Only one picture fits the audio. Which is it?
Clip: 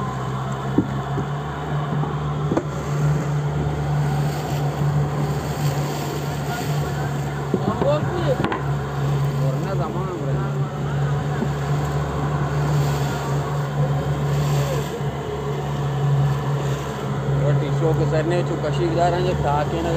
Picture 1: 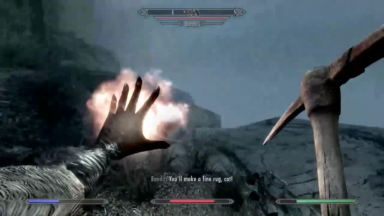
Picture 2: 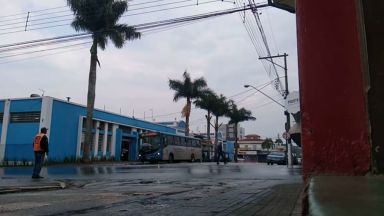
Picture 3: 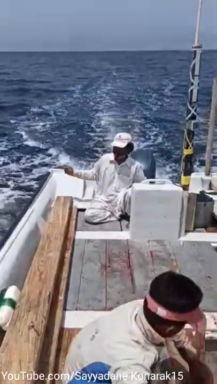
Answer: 3